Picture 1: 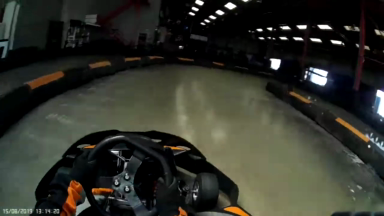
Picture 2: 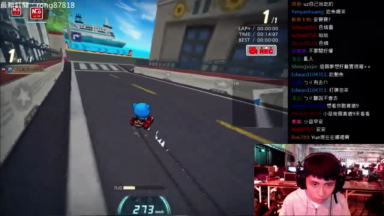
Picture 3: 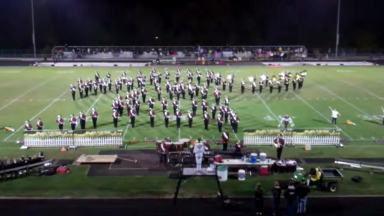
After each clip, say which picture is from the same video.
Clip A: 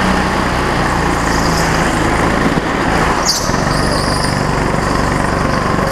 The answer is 1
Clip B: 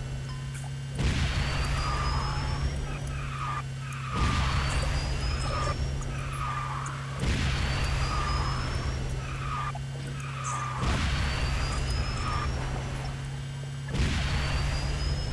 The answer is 2